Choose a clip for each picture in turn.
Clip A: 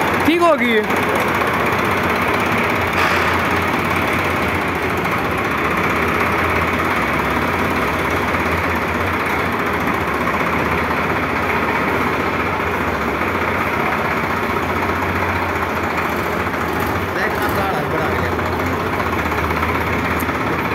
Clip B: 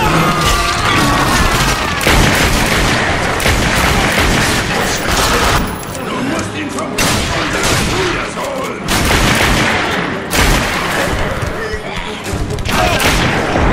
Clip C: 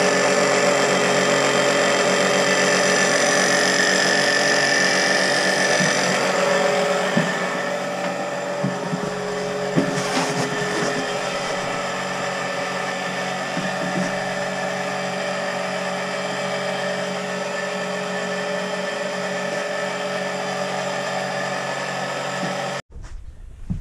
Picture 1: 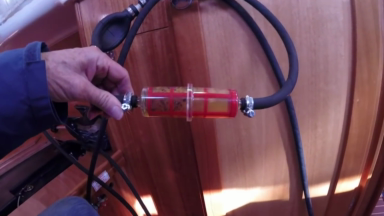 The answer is C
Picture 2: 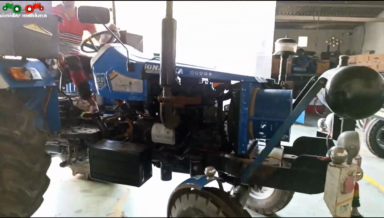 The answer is A